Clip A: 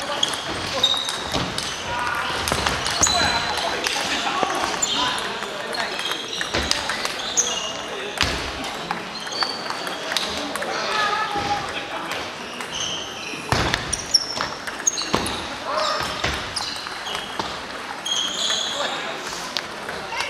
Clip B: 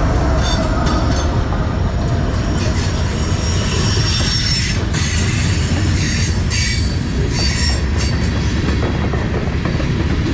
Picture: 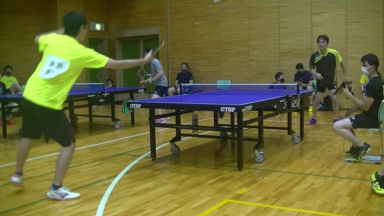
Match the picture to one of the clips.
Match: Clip A